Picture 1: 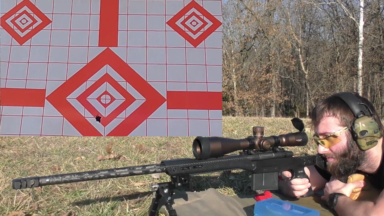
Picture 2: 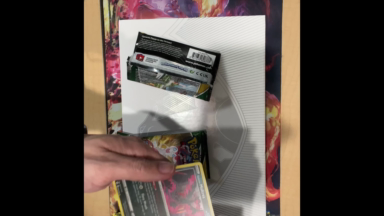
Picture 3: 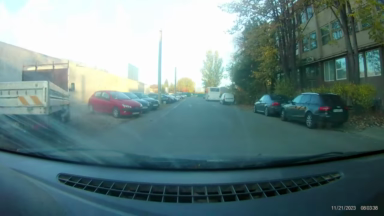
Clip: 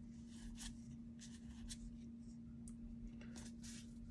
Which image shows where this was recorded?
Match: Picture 2